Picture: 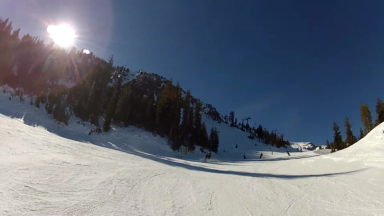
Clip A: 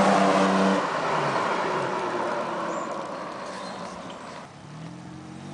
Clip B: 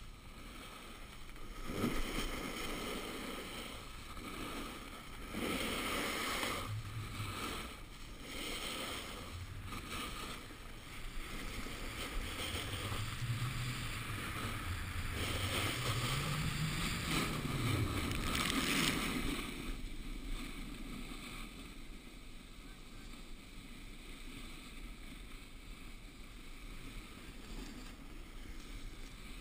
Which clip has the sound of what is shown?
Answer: B